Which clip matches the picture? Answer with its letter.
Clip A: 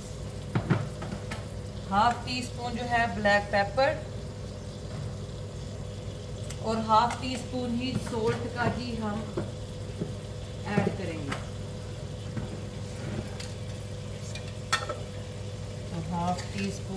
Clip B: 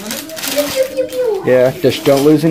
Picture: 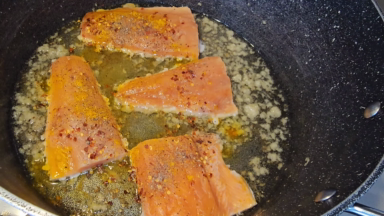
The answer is A